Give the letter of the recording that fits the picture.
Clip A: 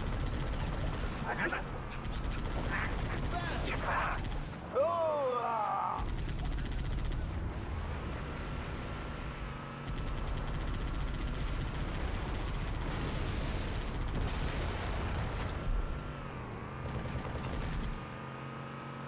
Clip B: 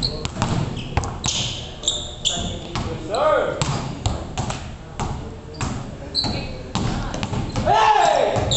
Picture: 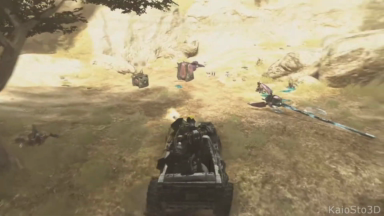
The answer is A